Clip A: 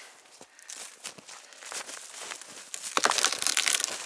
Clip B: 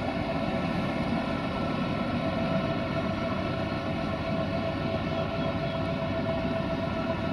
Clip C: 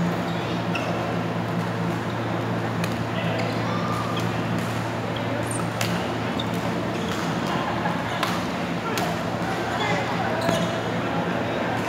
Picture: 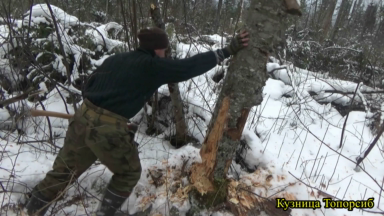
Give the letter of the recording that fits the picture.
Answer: A